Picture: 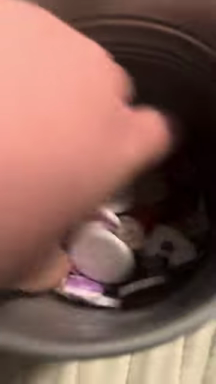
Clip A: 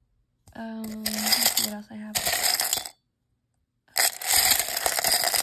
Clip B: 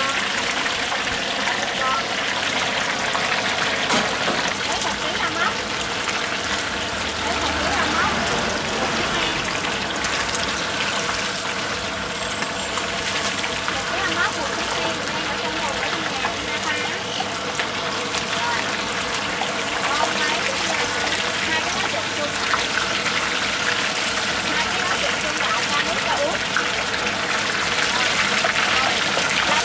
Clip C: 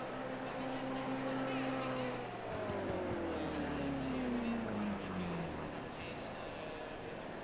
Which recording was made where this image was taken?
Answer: A